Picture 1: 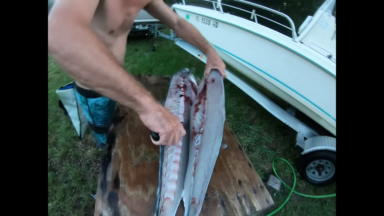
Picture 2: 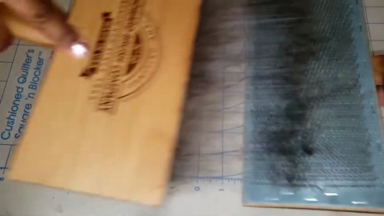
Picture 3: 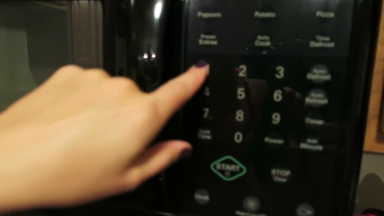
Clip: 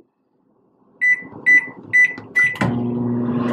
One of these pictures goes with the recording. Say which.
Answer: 3